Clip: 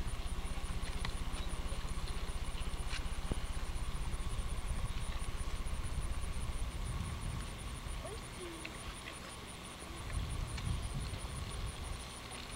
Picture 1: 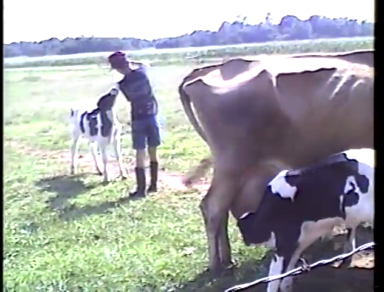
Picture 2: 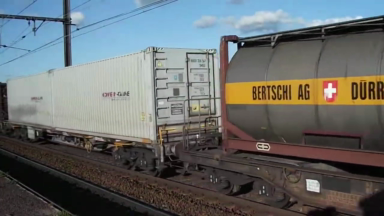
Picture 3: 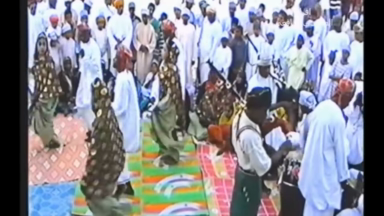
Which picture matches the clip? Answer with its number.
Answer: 1